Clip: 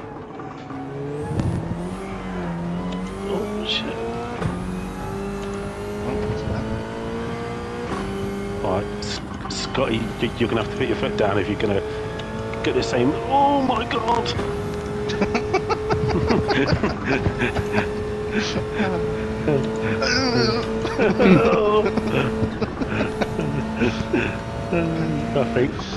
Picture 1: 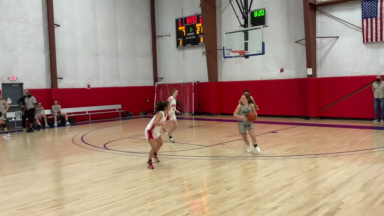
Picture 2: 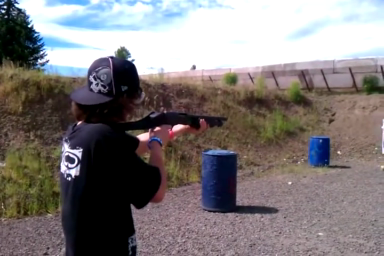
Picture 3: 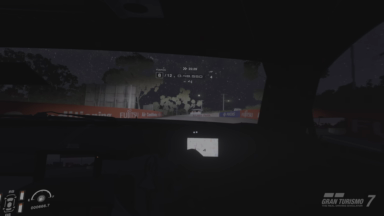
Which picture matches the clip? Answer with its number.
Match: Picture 3